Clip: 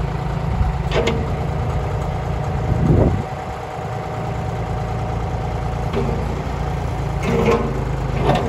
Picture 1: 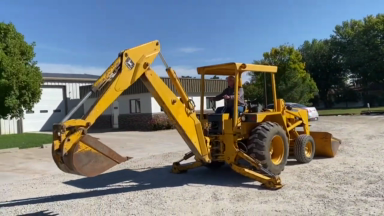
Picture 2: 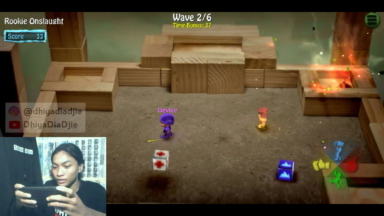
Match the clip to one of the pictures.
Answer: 1